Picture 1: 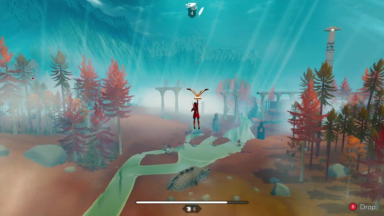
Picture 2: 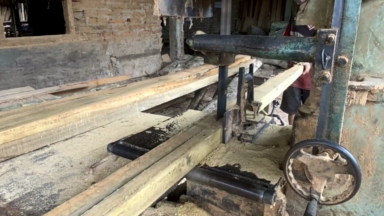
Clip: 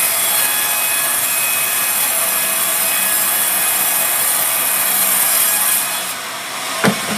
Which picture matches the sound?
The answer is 2